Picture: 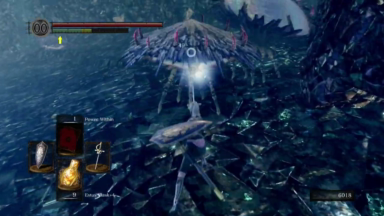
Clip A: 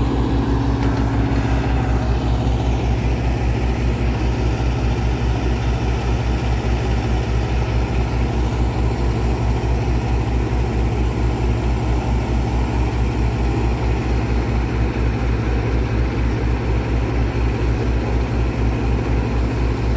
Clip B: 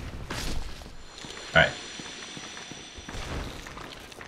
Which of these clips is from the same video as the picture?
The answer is B